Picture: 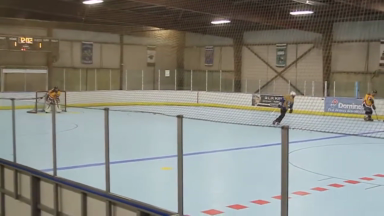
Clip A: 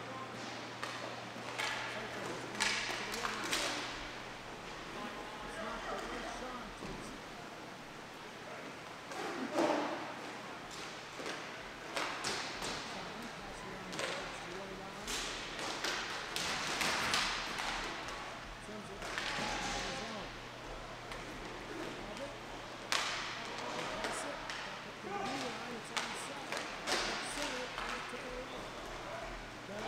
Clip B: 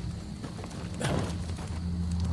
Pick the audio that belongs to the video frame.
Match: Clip A